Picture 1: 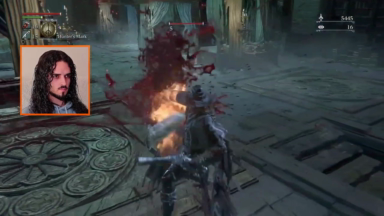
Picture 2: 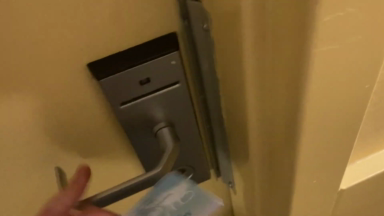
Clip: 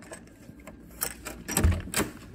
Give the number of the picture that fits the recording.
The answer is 2